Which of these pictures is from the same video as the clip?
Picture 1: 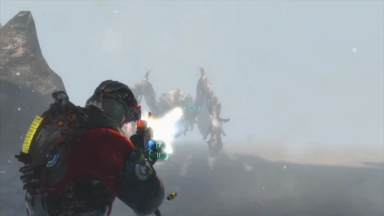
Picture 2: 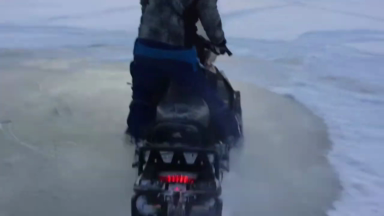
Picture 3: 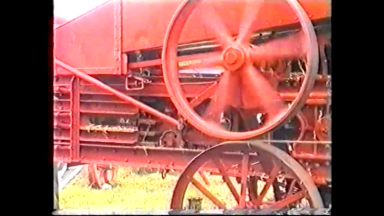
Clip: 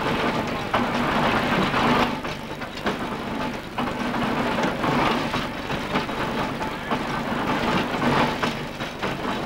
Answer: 3